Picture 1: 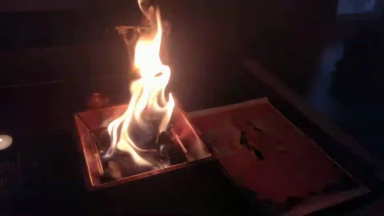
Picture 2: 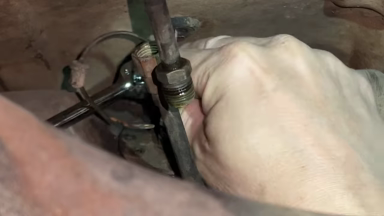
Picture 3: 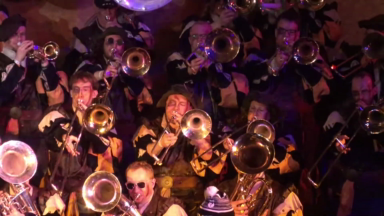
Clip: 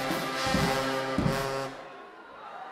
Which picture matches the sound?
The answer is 3